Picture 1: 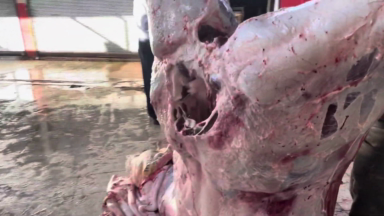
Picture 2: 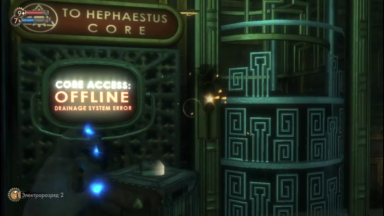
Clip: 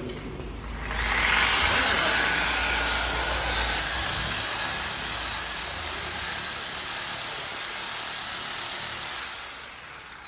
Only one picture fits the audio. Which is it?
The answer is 1